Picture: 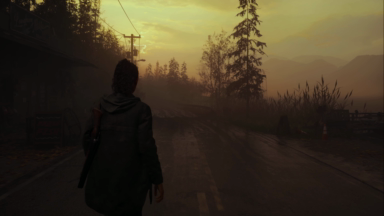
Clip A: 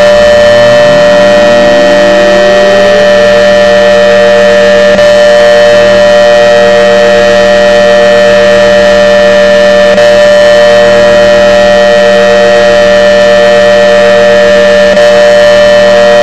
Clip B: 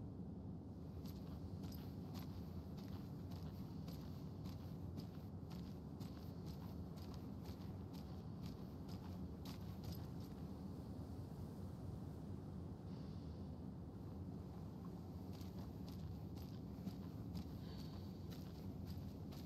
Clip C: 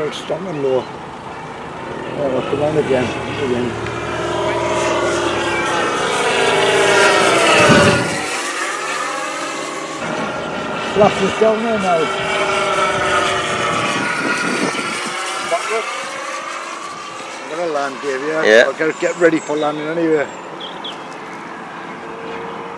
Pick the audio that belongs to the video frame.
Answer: B